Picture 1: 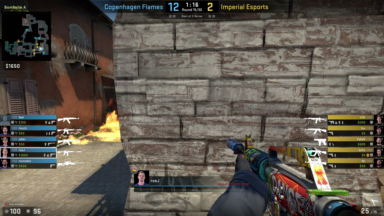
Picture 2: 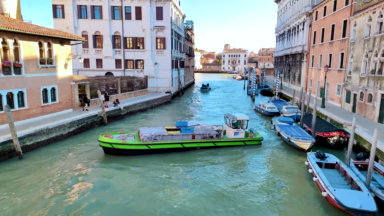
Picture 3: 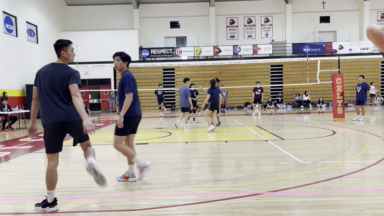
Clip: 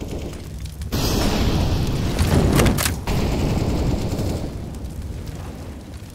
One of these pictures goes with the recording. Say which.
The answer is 1